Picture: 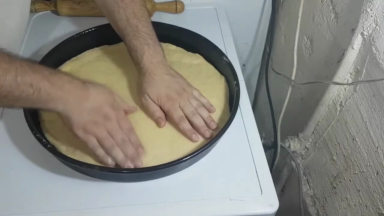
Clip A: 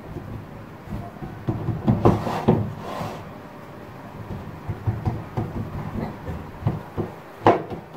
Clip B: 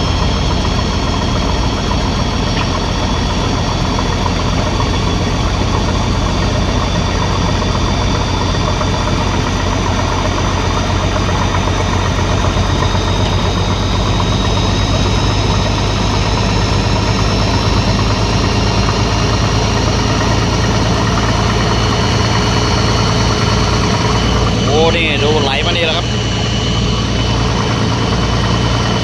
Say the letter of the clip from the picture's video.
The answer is A